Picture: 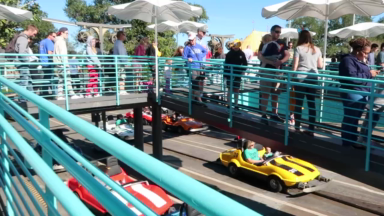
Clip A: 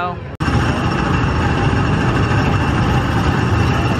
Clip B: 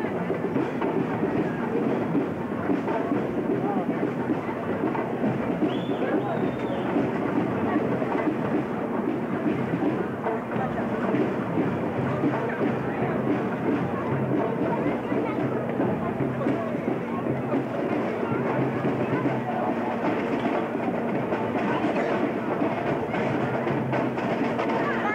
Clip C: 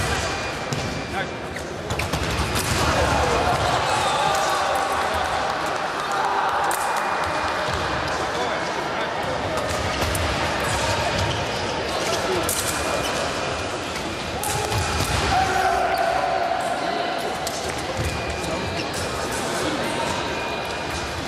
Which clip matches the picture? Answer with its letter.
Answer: A